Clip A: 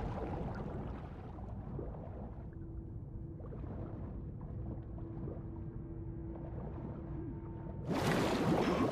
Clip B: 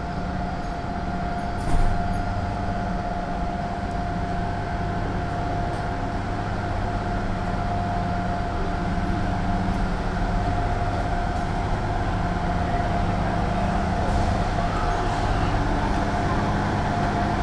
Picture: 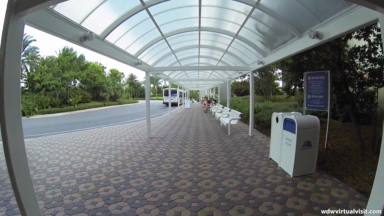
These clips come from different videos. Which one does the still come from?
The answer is B